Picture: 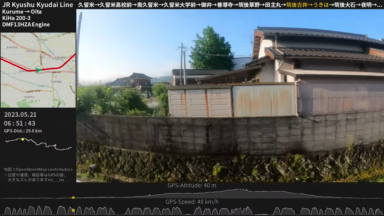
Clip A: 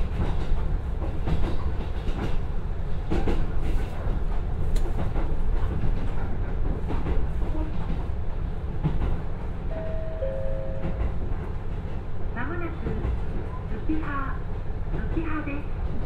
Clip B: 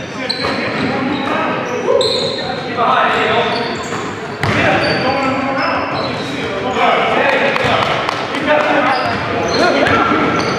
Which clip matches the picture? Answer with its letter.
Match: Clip A